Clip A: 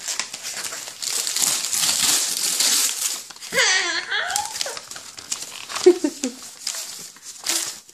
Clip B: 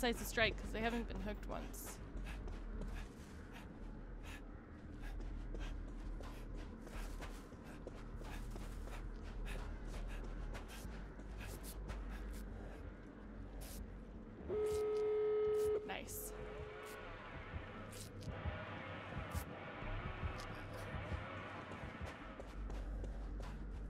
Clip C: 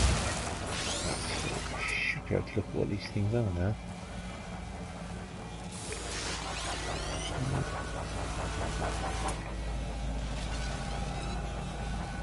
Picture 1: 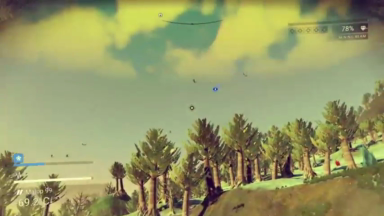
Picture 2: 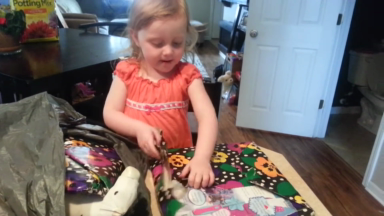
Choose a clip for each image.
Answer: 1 C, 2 A